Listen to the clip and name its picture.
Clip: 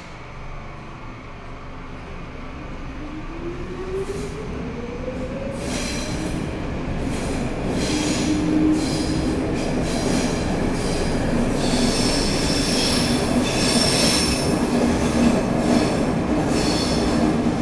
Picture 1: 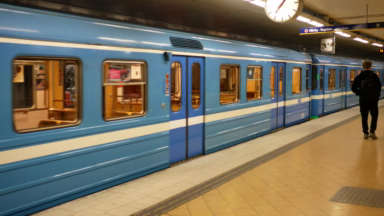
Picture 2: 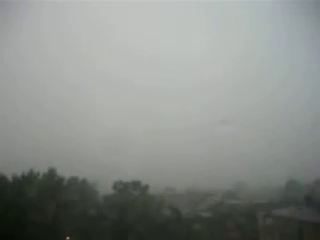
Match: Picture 1